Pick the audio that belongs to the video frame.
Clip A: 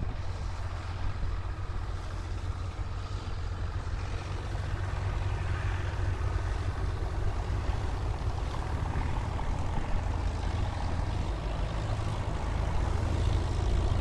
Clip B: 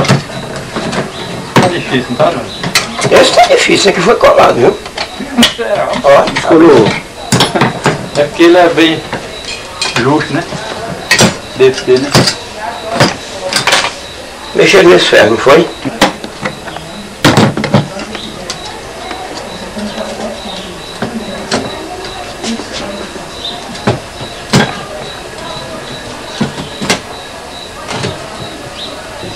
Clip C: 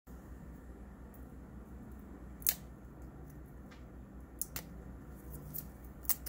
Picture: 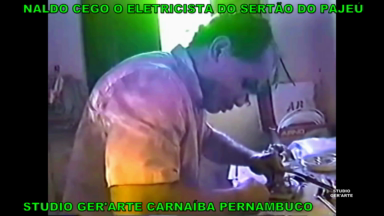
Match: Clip B